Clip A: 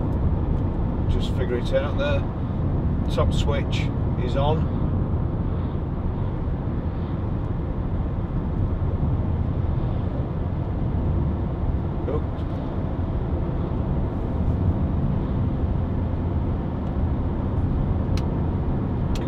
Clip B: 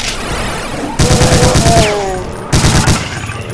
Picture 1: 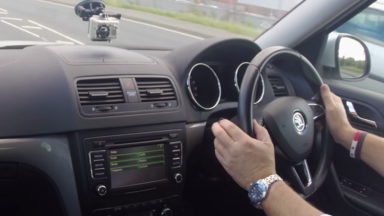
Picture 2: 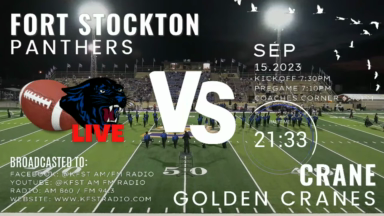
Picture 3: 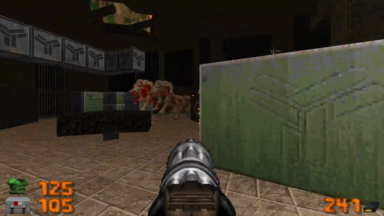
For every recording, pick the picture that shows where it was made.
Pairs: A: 1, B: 3